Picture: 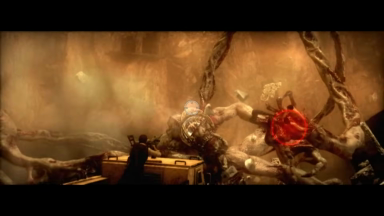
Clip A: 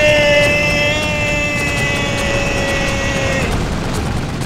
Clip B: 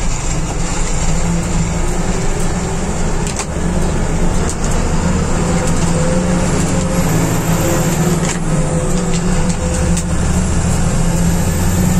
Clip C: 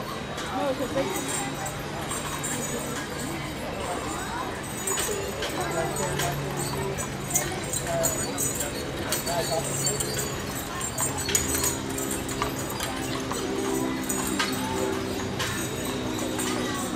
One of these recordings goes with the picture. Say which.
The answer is A